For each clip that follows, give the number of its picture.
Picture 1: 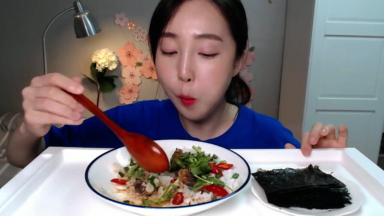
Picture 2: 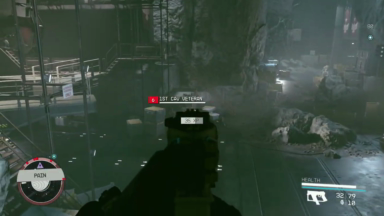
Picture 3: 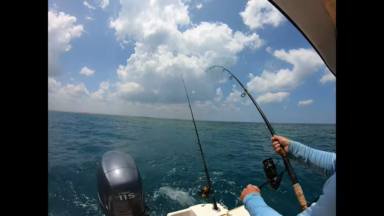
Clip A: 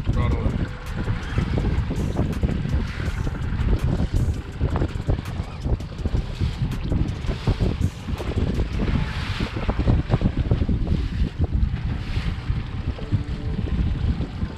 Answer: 3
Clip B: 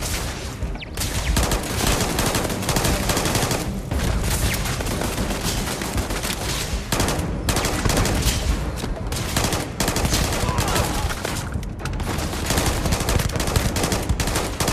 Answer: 2